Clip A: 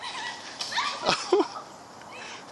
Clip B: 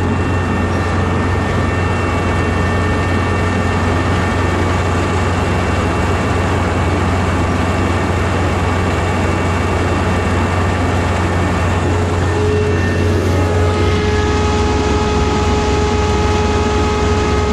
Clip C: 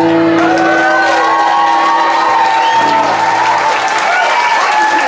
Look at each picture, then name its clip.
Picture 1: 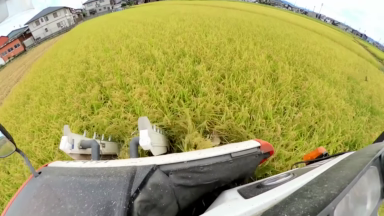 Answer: B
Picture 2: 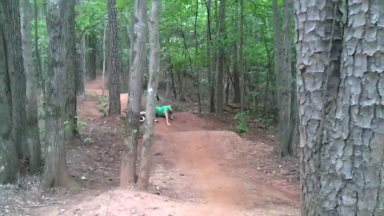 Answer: A